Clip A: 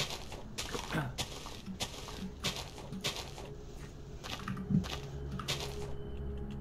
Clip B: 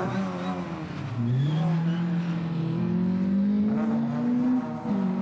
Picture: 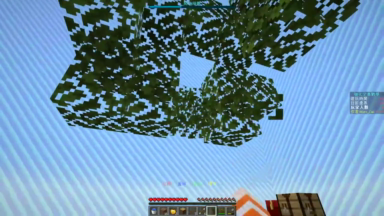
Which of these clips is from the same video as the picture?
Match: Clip A